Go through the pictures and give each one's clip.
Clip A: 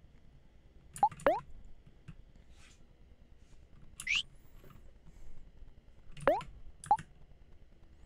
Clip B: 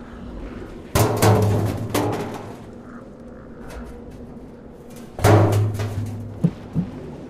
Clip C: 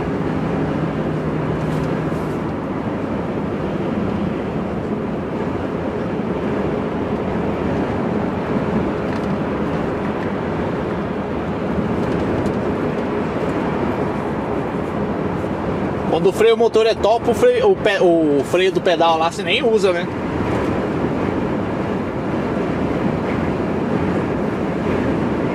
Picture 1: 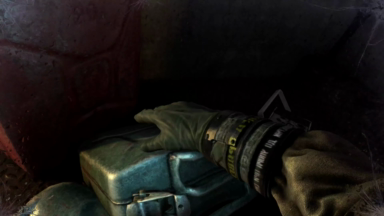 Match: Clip B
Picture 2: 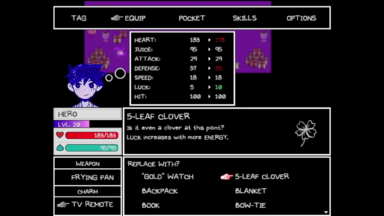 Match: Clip A